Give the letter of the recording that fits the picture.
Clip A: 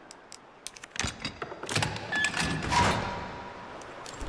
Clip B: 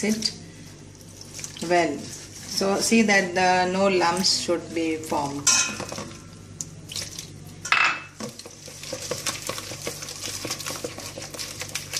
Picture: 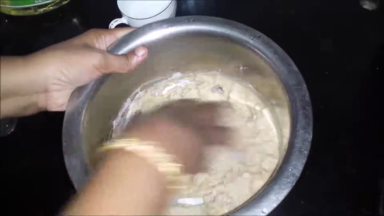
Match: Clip B